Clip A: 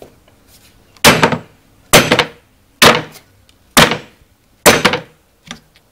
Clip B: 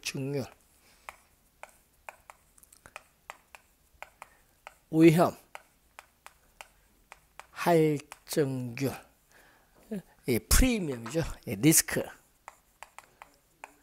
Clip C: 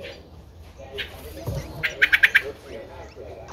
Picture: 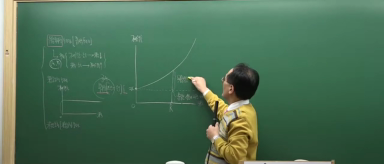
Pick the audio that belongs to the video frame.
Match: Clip B